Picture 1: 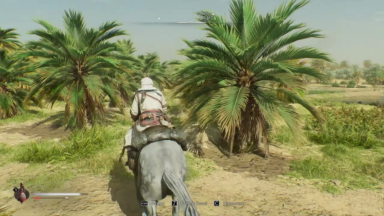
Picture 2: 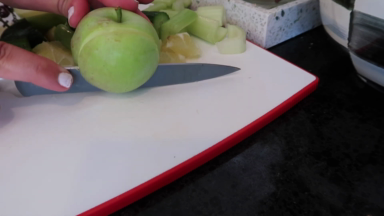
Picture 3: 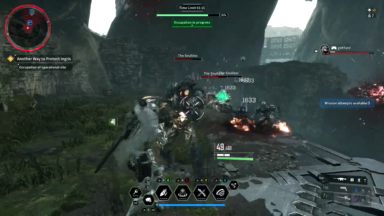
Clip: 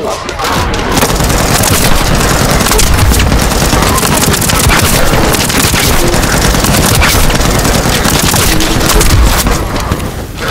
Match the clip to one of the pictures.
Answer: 3